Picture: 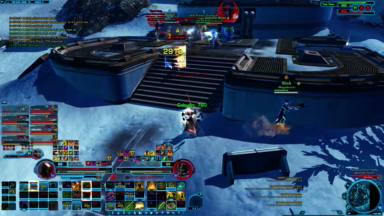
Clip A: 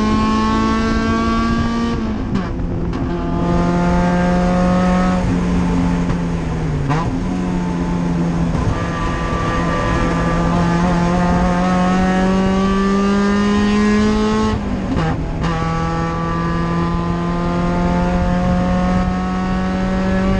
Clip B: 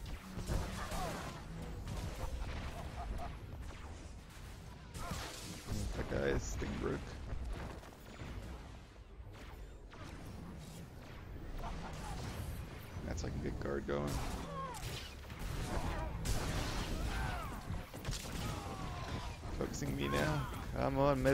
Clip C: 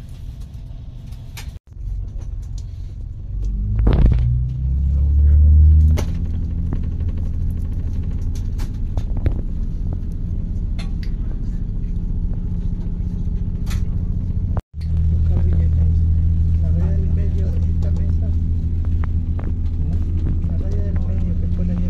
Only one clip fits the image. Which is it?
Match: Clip B